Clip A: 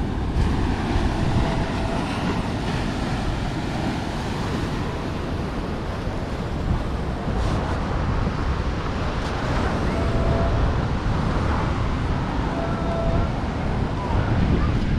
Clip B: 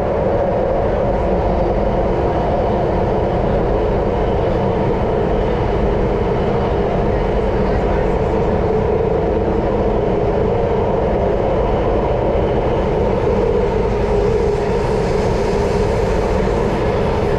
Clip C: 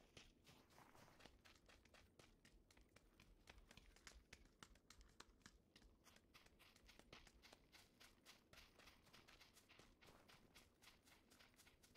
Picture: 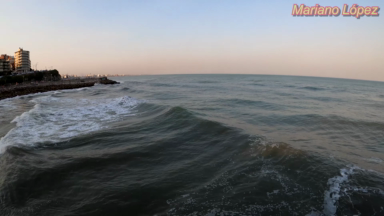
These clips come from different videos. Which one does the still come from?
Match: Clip A